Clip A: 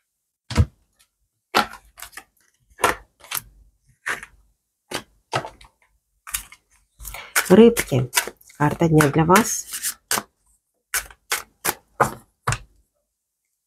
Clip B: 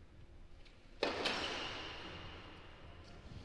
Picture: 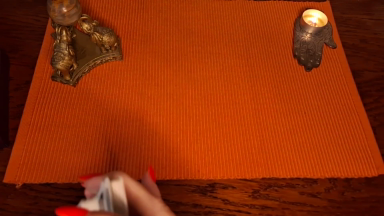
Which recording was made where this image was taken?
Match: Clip A